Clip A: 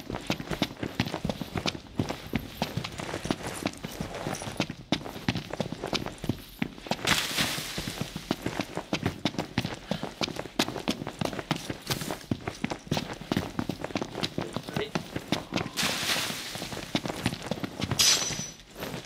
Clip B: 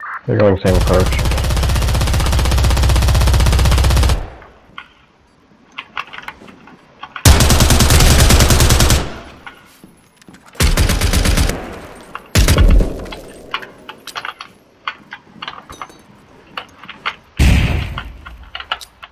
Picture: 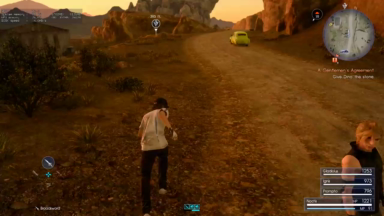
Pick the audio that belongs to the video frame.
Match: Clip A